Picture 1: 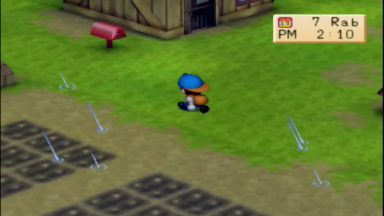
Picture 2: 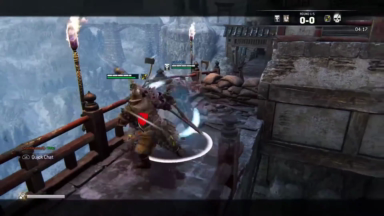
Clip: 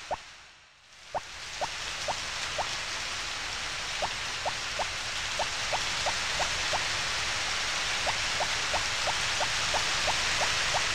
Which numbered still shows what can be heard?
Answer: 1